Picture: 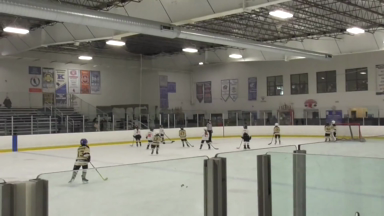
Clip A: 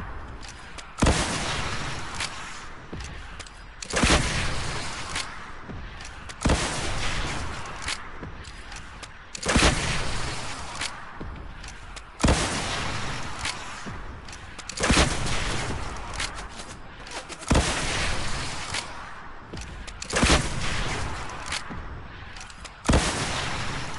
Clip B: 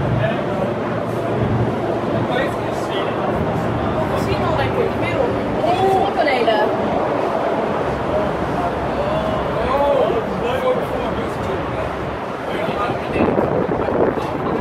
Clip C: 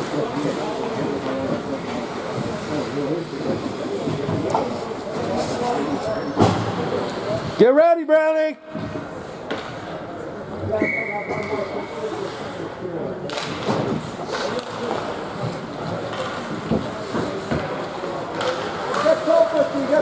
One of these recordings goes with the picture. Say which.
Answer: C